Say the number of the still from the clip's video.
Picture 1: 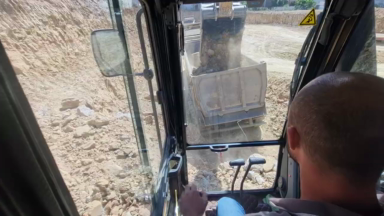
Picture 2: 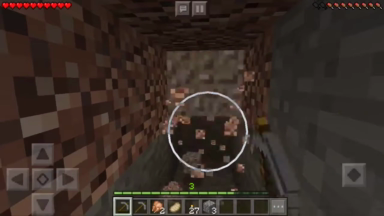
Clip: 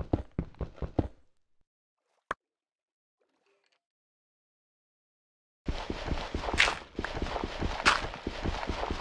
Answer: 2